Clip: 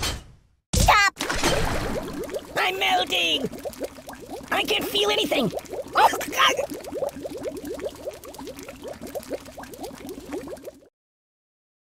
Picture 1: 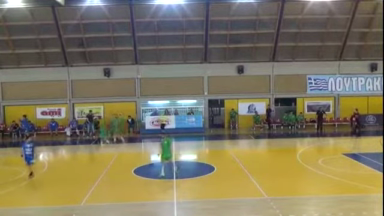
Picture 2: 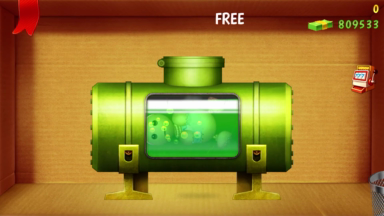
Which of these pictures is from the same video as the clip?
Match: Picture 2